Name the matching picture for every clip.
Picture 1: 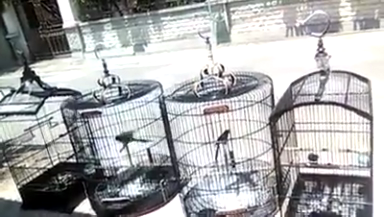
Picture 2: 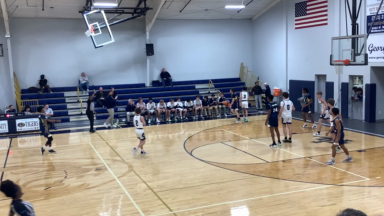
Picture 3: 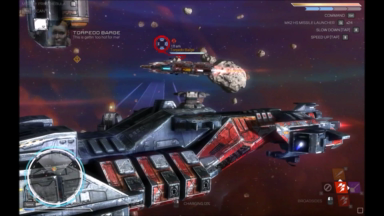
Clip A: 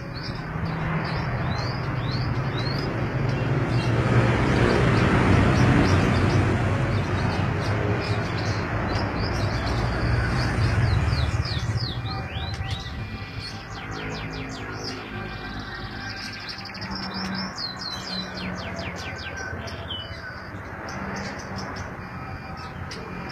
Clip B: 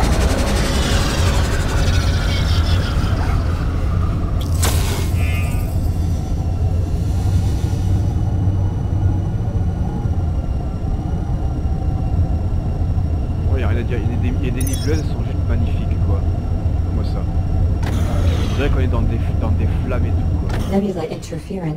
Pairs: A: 1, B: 3